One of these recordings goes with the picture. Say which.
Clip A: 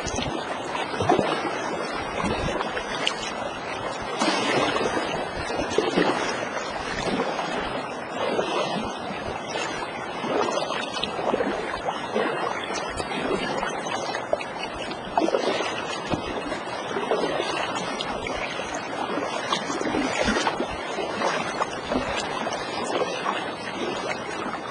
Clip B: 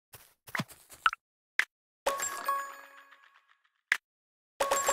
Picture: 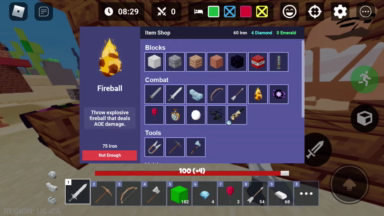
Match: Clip B